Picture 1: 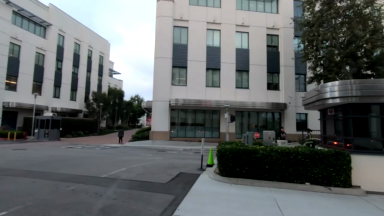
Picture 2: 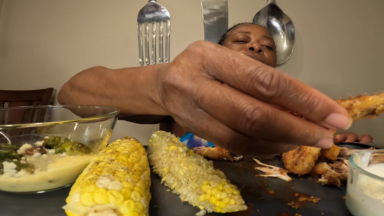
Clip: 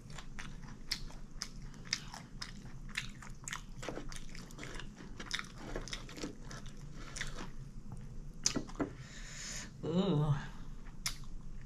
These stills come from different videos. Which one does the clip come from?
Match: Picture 2